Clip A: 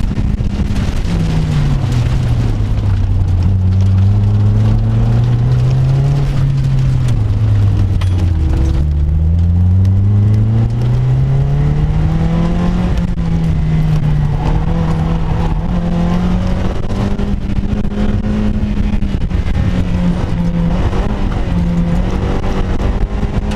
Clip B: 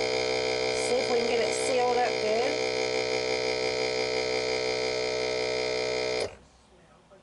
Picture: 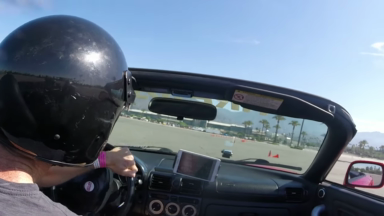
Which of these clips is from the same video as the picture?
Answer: A